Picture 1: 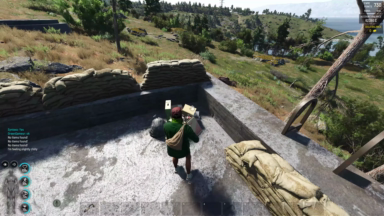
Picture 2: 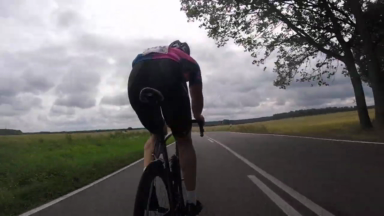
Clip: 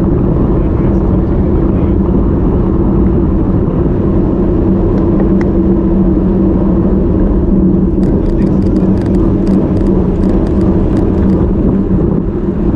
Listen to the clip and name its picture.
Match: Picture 2